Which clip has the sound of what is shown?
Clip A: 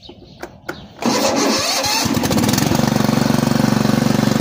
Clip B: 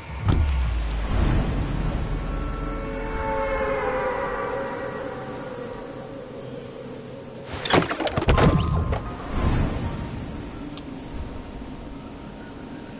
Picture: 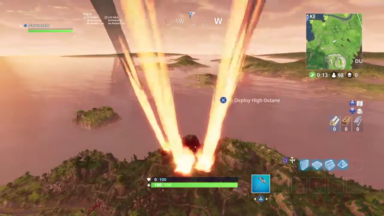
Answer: B